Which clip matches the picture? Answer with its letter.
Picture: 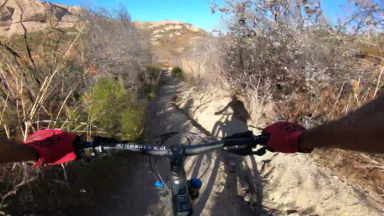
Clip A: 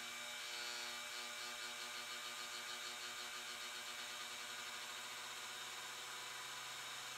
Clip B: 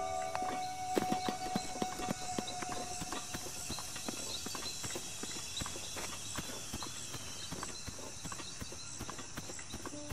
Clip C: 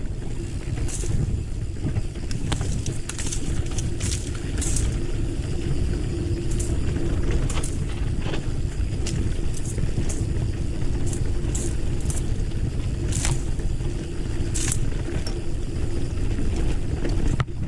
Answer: C